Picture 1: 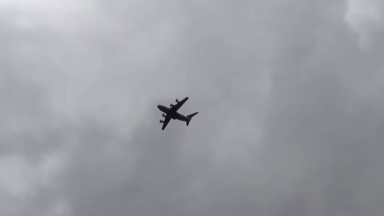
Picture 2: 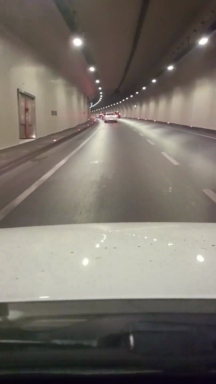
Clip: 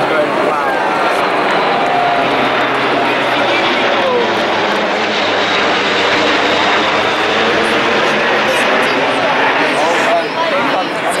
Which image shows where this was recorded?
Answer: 1